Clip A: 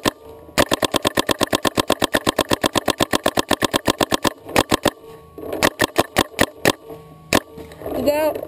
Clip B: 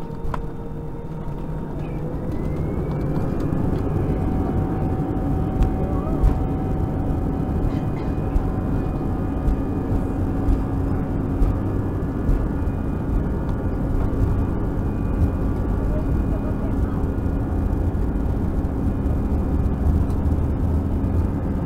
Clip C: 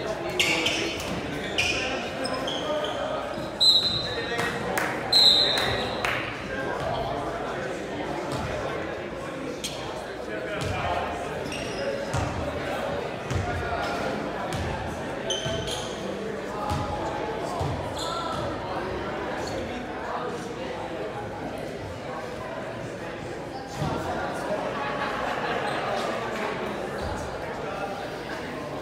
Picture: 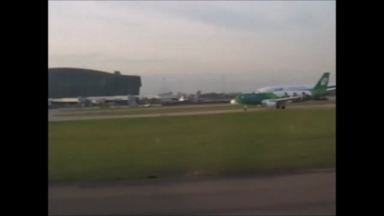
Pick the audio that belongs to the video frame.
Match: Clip B